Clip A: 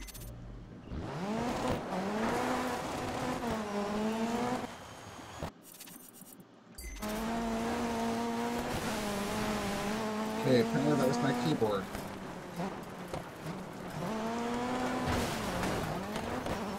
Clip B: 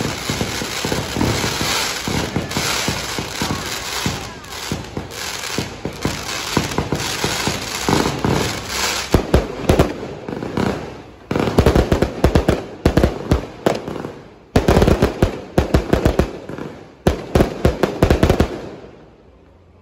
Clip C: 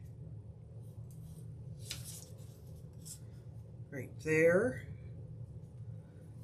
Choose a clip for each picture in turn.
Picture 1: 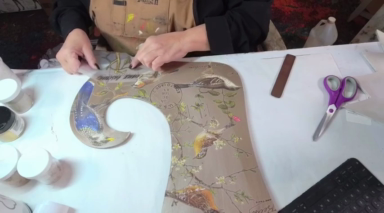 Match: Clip C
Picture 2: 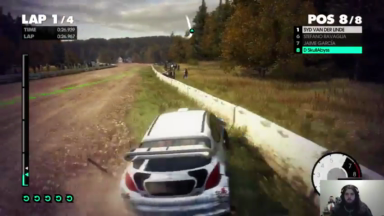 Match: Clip A